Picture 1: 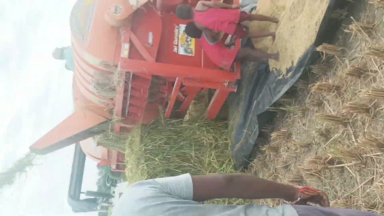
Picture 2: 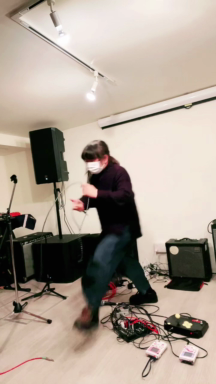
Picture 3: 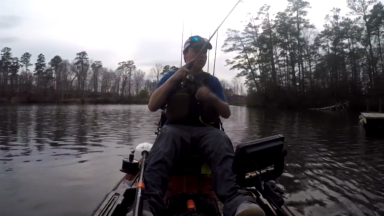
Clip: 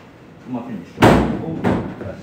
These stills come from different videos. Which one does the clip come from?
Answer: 2